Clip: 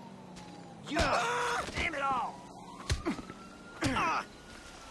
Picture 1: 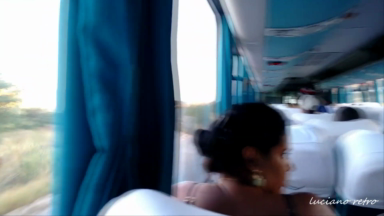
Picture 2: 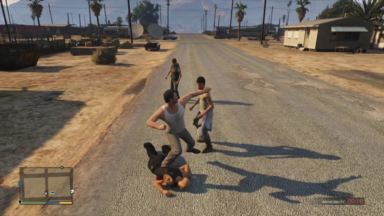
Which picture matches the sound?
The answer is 2